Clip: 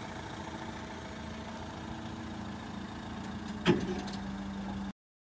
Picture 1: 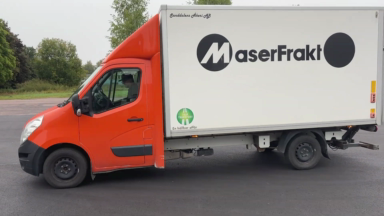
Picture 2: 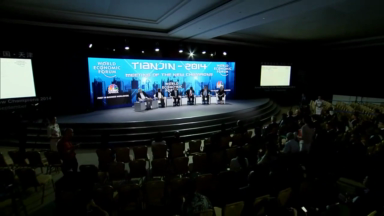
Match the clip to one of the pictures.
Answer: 1